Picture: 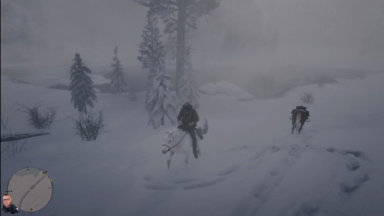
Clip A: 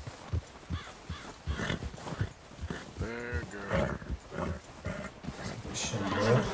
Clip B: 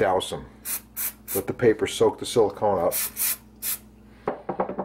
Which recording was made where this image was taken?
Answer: A